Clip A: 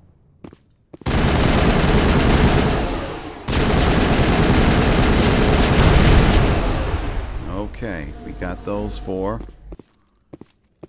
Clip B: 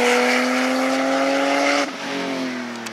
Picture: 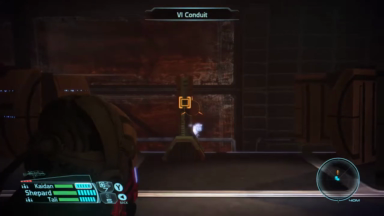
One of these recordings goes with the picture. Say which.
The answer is A